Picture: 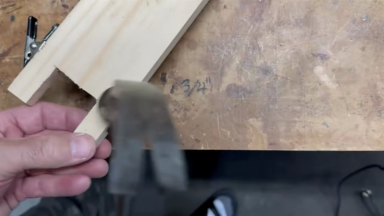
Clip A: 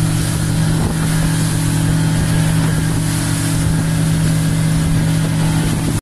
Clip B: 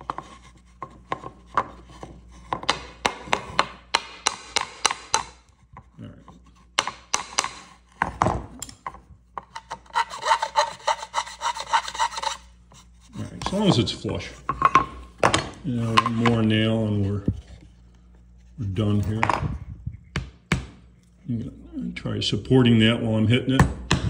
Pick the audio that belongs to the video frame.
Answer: B